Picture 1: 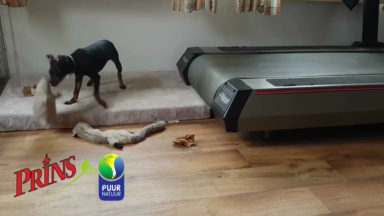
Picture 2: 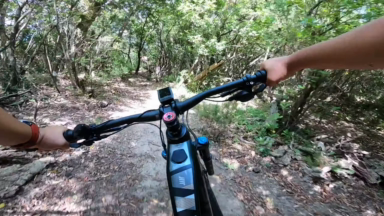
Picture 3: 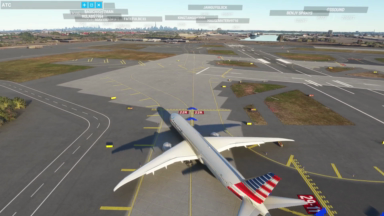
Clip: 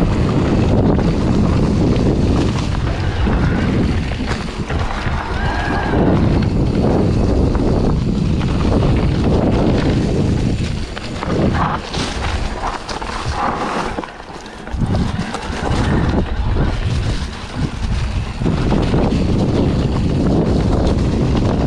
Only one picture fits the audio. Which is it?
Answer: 2